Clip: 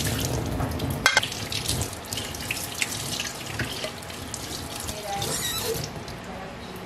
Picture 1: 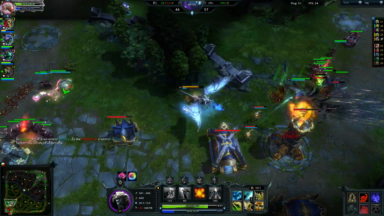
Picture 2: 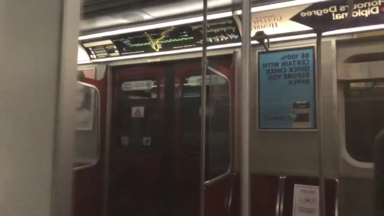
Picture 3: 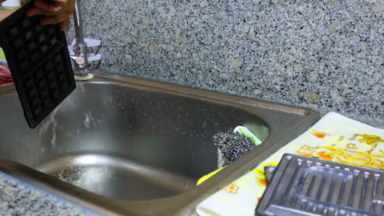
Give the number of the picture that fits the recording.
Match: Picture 3